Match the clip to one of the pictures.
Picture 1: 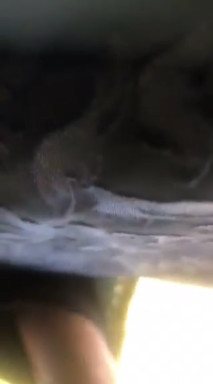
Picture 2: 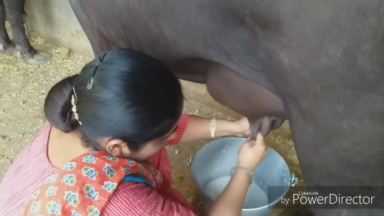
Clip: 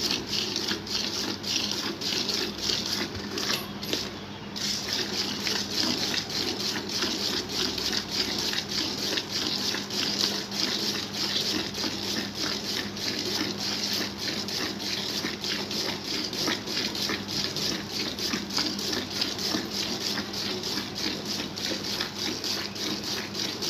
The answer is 2